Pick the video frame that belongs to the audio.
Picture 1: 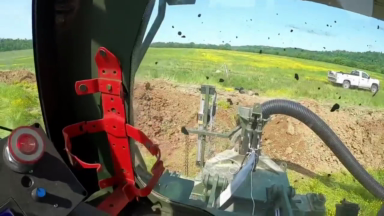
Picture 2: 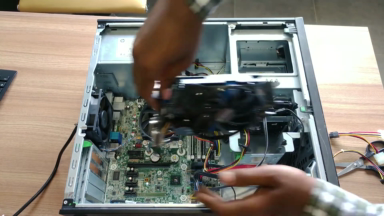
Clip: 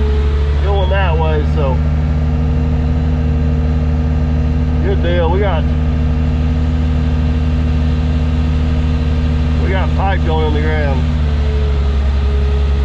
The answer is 1